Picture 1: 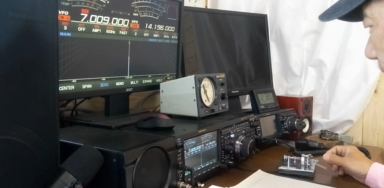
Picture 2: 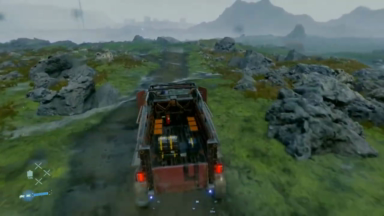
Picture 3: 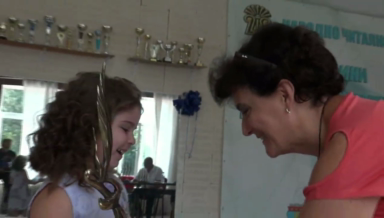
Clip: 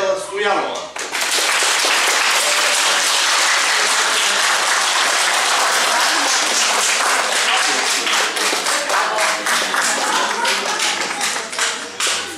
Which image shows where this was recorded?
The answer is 3